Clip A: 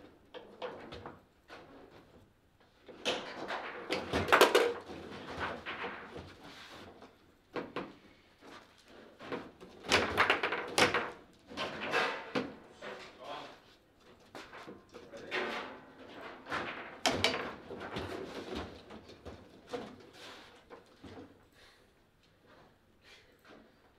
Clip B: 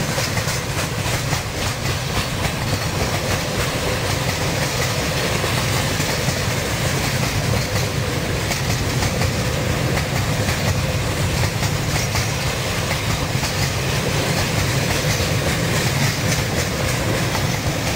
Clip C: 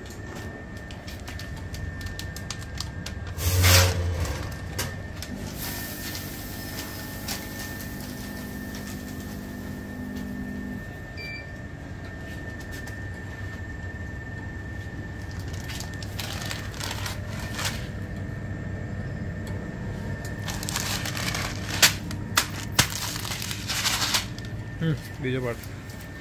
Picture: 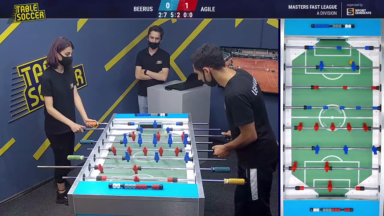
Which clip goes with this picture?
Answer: A